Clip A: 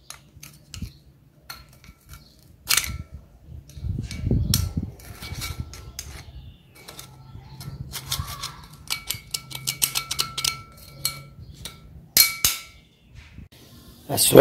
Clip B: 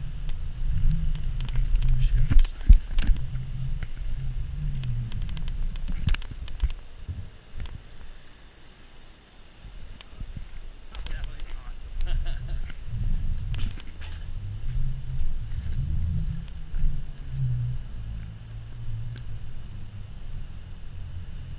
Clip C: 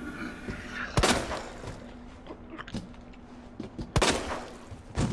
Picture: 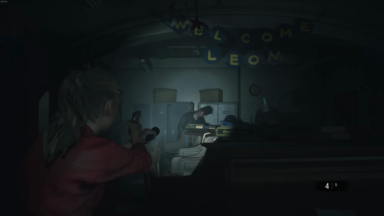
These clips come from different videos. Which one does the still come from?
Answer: C